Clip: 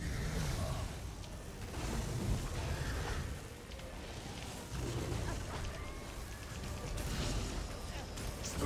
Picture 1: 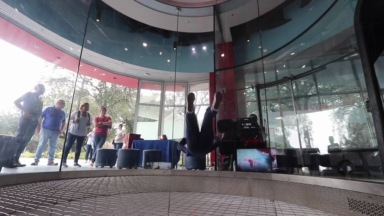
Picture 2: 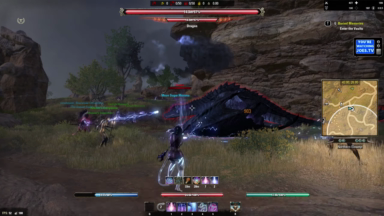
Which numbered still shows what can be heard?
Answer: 2